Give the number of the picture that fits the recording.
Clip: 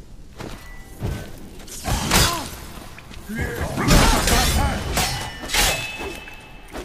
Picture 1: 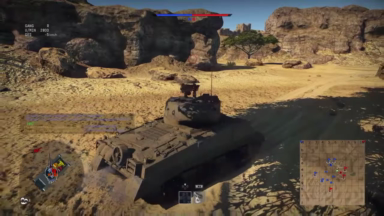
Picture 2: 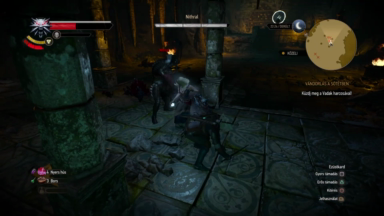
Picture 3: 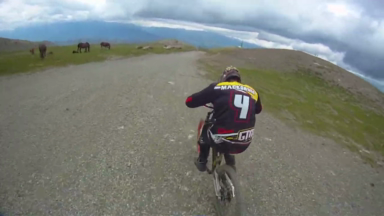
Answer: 2